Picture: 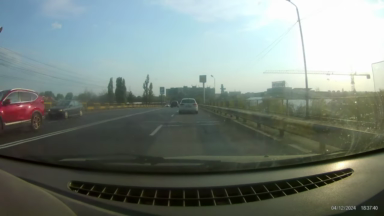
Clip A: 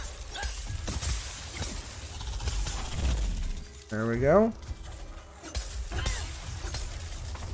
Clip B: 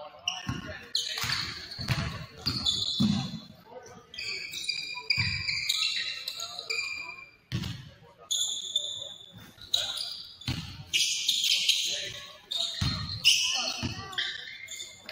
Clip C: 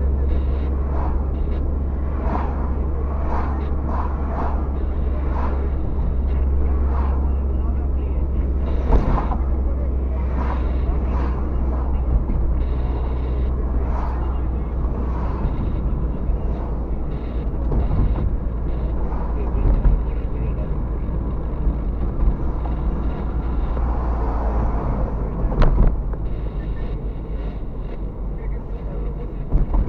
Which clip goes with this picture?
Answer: C